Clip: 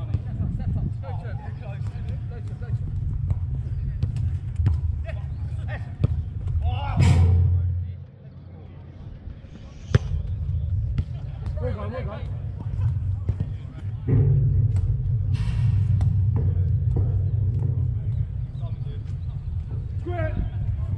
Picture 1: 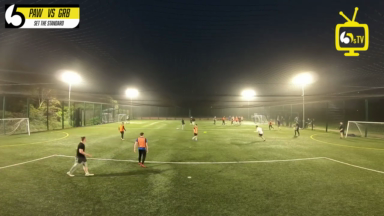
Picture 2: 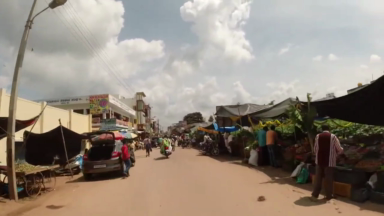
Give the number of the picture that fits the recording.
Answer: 1